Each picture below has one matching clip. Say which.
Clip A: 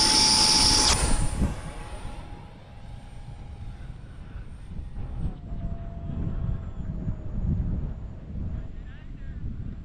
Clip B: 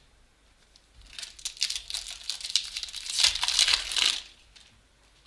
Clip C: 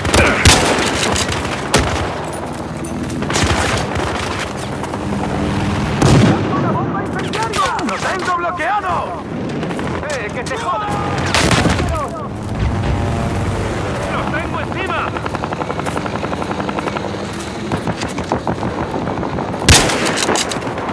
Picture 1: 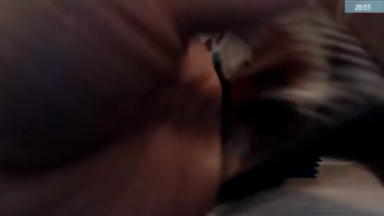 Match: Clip B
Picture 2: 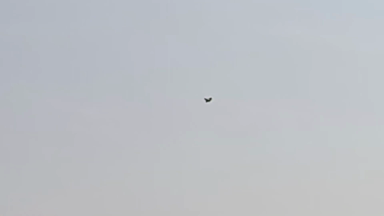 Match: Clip A